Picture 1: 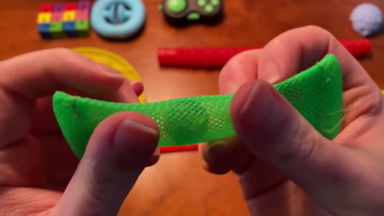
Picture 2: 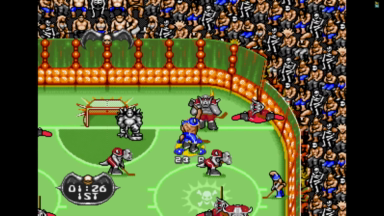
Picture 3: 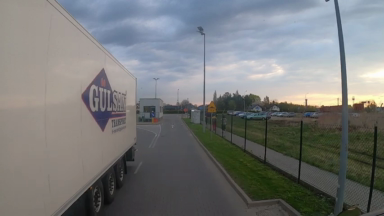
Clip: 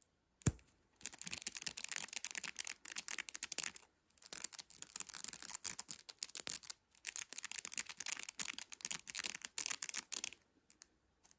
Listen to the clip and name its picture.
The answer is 1